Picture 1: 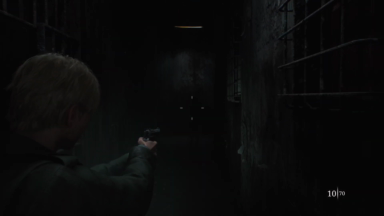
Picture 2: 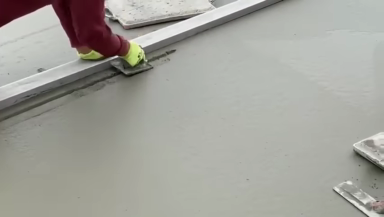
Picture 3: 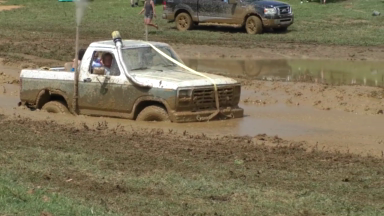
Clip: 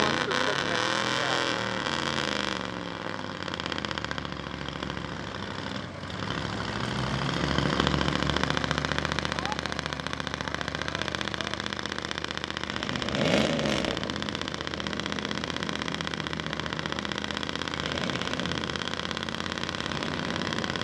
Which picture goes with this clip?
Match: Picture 3